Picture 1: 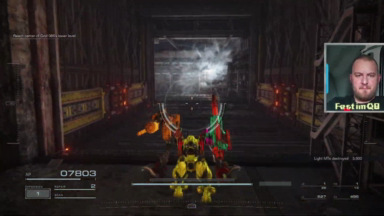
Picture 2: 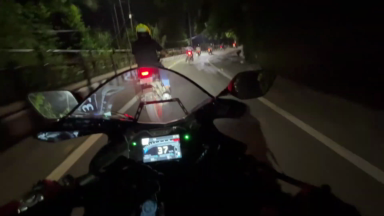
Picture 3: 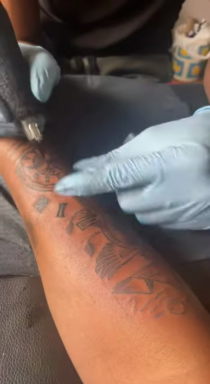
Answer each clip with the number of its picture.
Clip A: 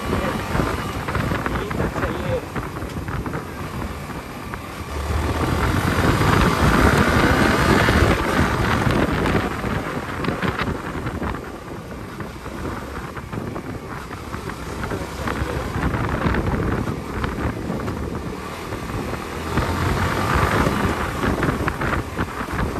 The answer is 2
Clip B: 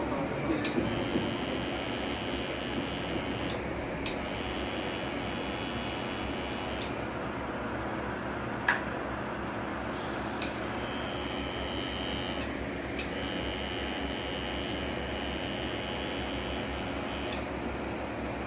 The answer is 3